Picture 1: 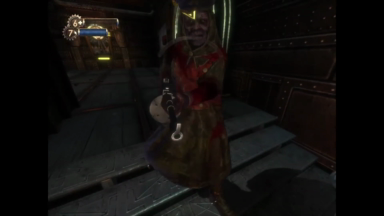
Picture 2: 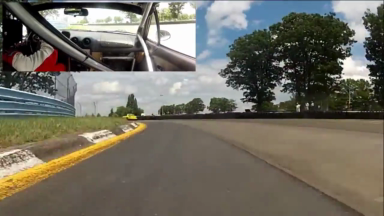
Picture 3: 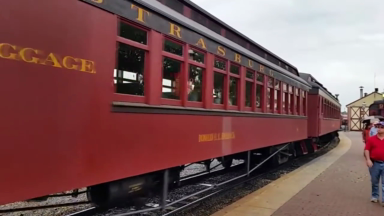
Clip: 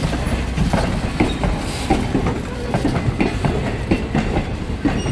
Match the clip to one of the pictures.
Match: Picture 3